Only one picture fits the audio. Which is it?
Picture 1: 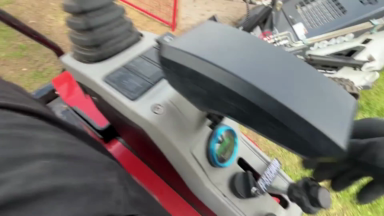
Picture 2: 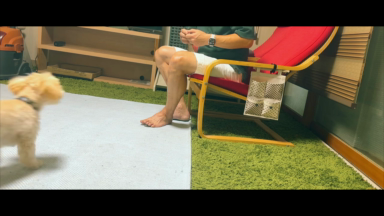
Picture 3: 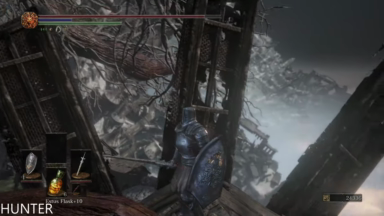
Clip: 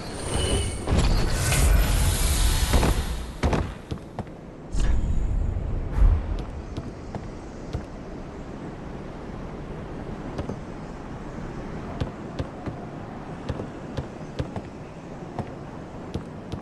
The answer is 3